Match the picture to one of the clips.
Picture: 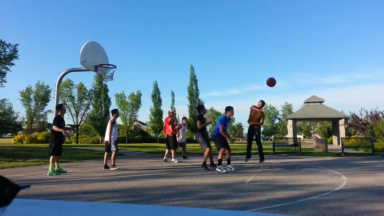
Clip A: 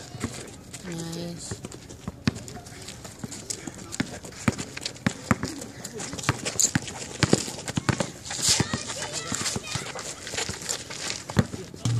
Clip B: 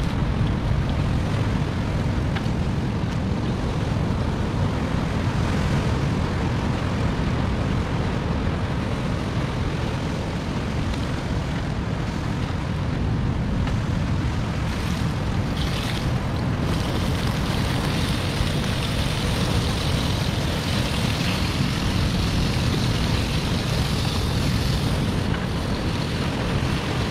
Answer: A